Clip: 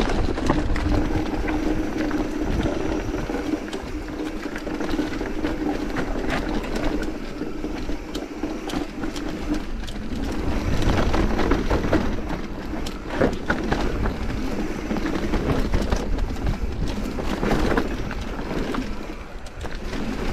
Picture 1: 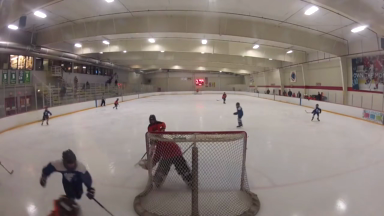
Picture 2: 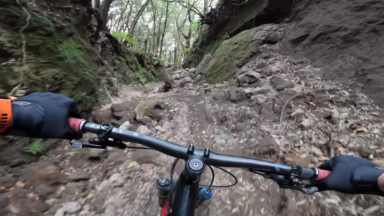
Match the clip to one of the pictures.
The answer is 2